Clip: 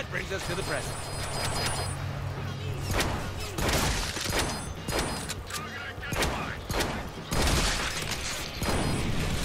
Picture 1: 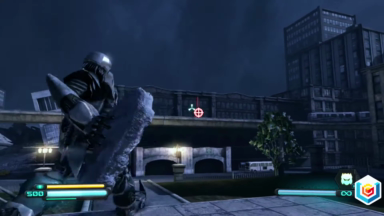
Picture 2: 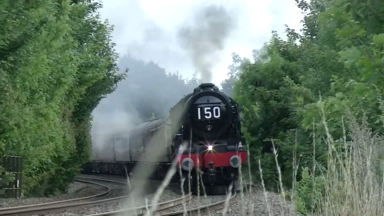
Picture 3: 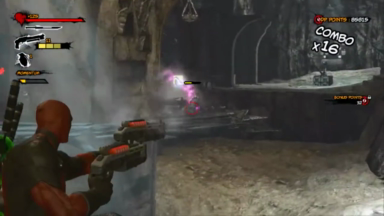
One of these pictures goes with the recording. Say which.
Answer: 3